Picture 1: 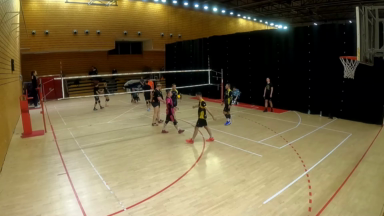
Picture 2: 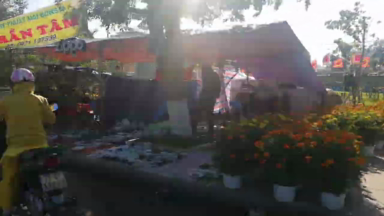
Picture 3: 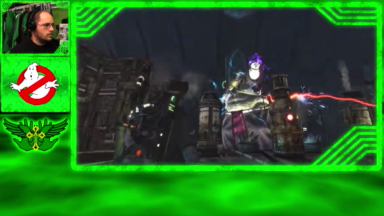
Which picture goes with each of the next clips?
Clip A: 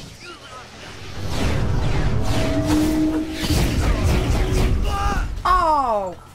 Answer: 3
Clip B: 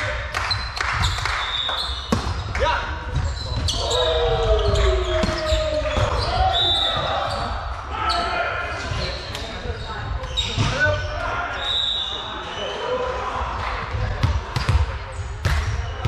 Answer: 1